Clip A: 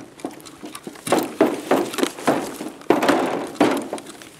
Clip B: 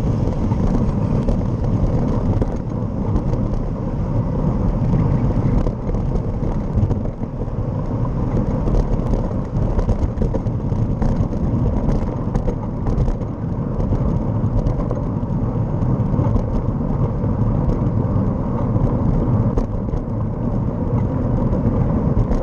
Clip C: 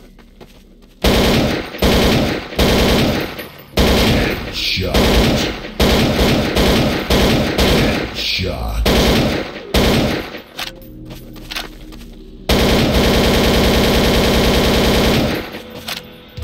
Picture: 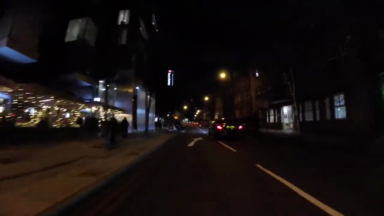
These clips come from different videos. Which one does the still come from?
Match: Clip B